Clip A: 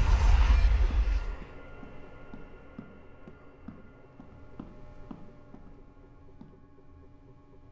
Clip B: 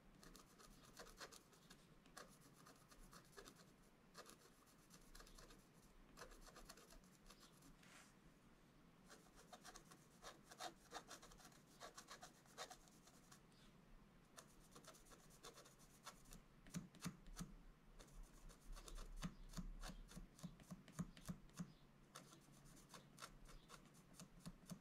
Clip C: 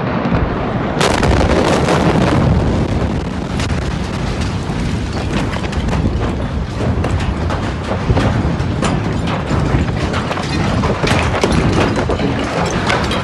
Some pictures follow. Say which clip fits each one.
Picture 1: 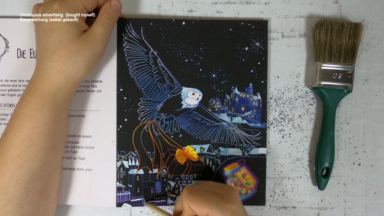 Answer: B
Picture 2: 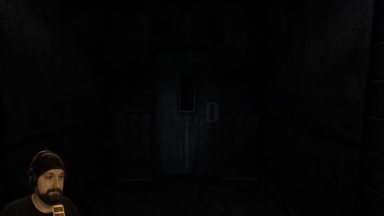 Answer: A